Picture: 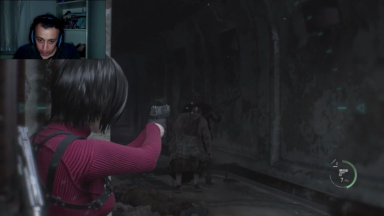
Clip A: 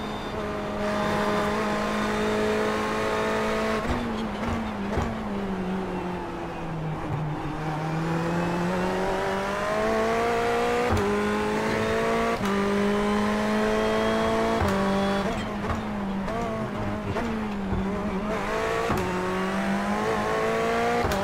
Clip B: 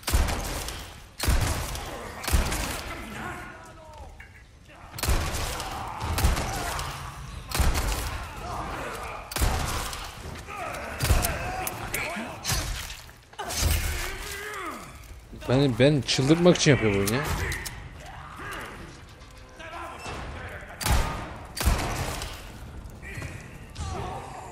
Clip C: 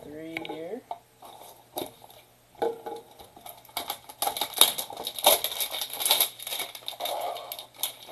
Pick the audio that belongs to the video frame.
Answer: B